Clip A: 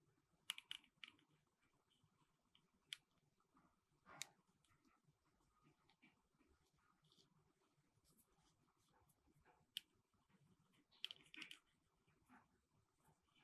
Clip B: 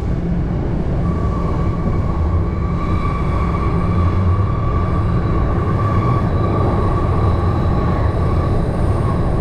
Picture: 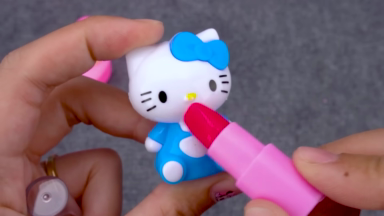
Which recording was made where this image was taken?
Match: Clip A